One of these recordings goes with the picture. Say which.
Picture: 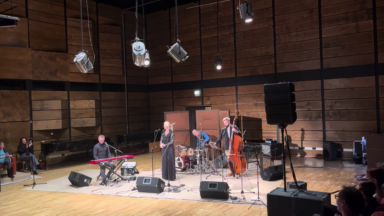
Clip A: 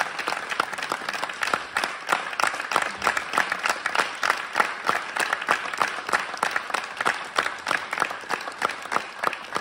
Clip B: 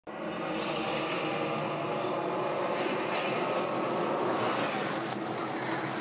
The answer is A